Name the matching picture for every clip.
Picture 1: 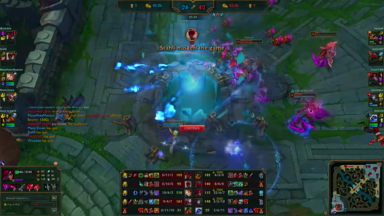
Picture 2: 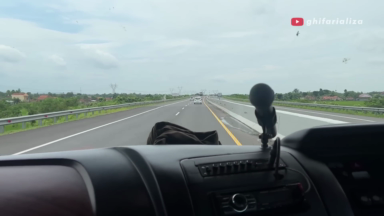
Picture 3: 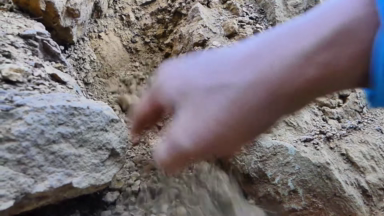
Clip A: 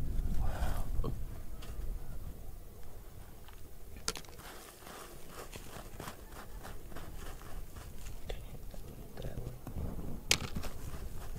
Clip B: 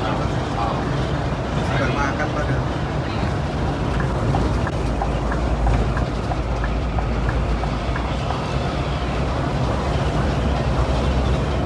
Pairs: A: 3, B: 2